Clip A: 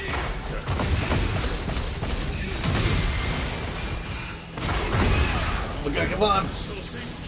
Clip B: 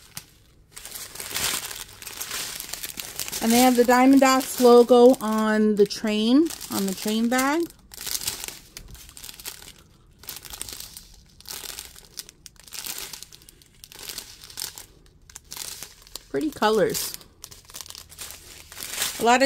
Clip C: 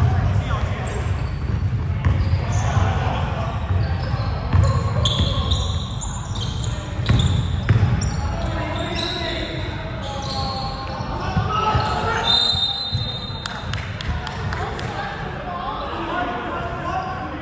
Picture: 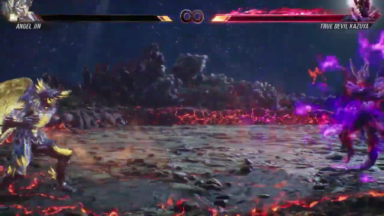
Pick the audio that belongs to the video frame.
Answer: A